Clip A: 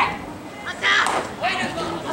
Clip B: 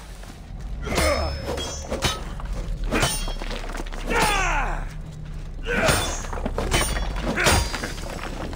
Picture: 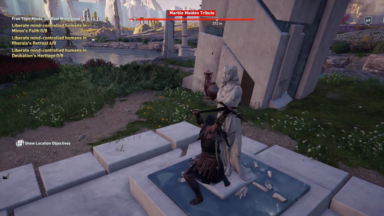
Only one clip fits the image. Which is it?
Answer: B